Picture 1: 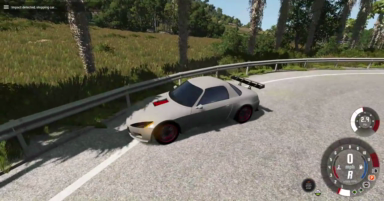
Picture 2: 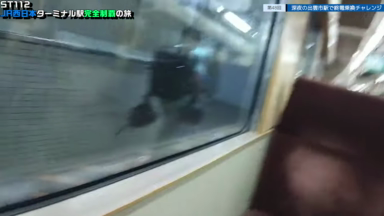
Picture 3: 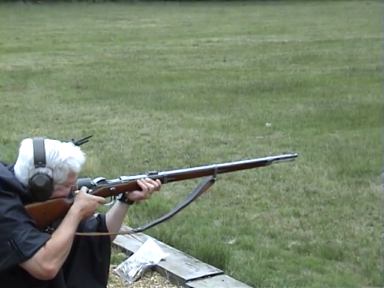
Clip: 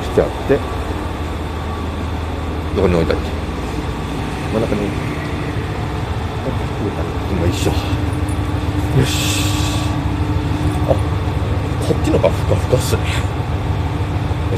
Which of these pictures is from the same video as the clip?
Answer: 2